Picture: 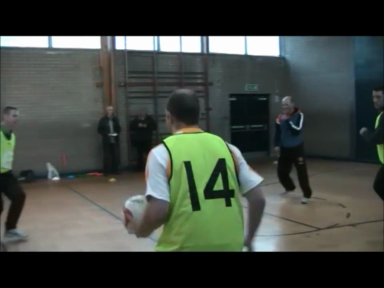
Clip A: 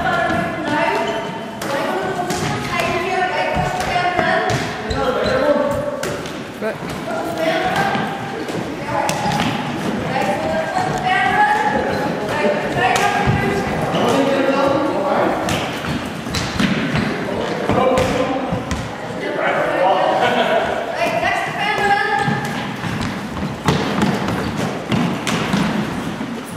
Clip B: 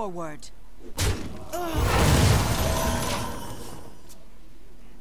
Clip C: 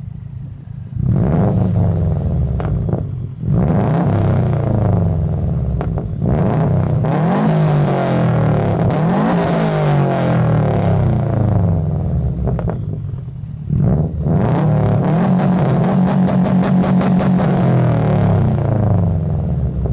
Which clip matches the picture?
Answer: A